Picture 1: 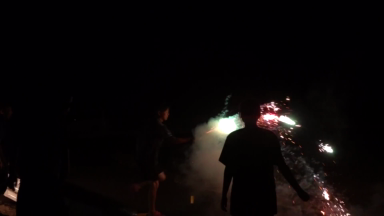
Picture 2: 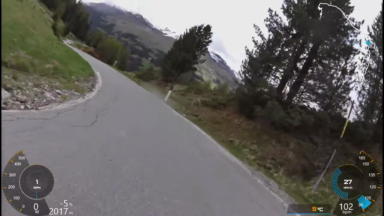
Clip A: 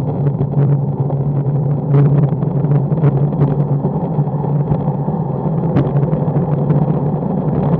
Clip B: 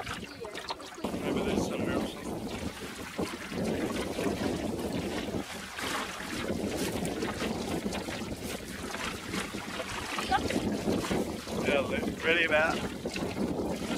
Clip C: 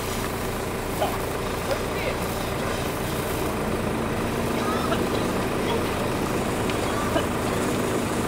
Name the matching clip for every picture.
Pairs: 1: C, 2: A